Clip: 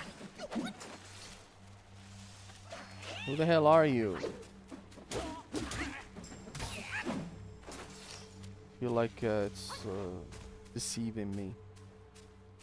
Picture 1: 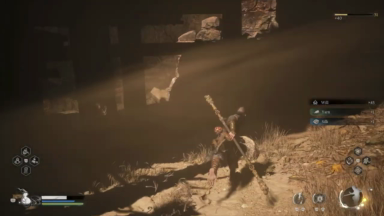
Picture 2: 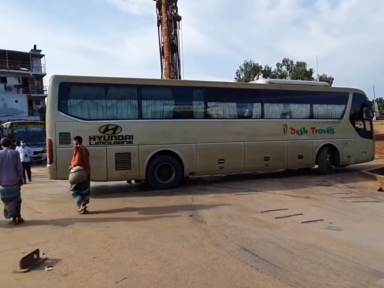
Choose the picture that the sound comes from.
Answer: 1